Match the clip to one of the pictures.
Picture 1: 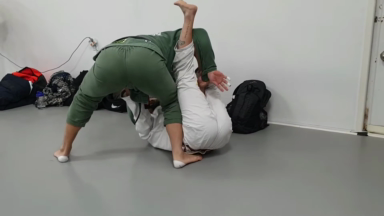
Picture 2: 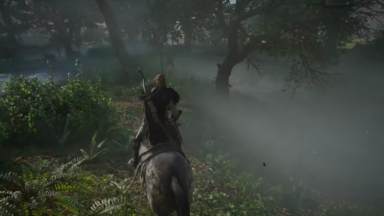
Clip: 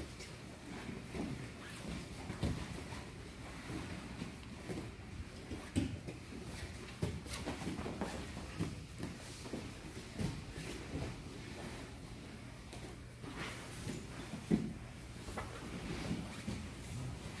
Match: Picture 1